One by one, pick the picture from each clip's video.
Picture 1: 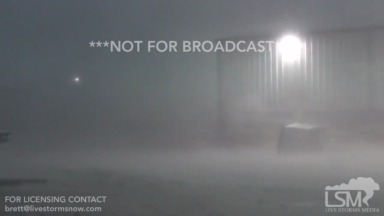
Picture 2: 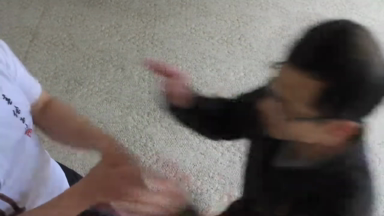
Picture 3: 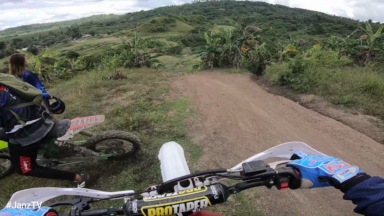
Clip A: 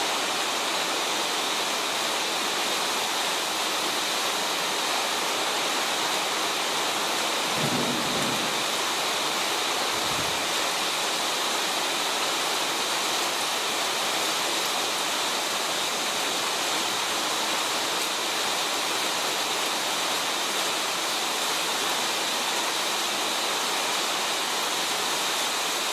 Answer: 1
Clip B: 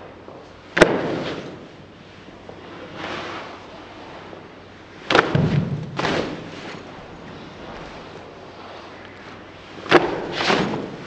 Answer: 2